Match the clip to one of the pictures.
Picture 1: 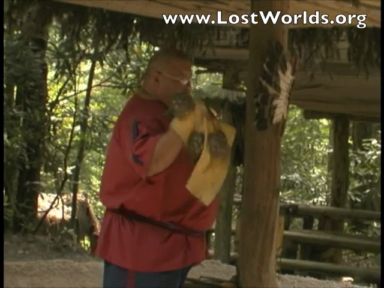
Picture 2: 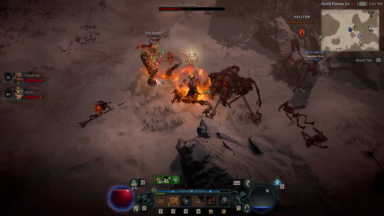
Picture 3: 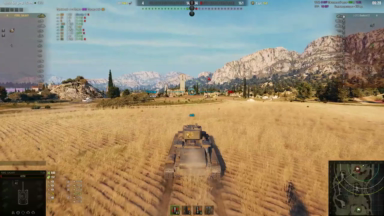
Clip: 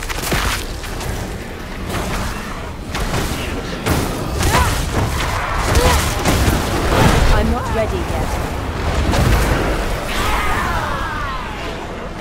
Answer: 2